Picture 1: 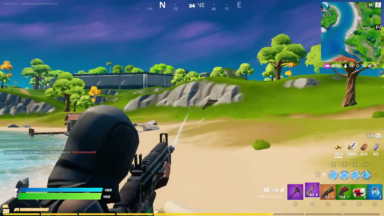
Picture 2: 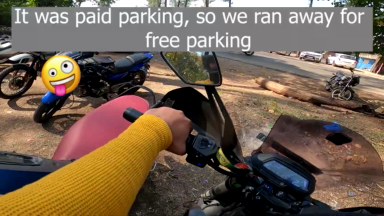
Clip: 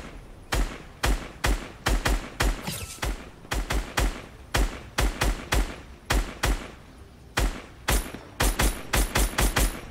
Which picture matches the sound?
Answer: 1